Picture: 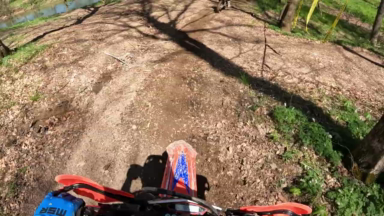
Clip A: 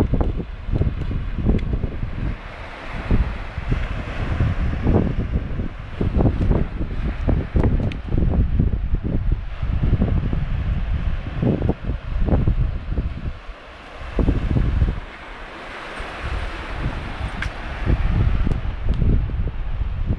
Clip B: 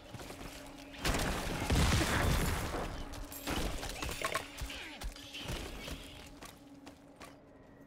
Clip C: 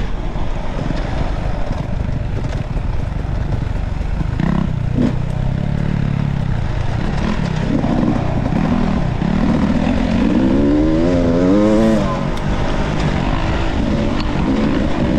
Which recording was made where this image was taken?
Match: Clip C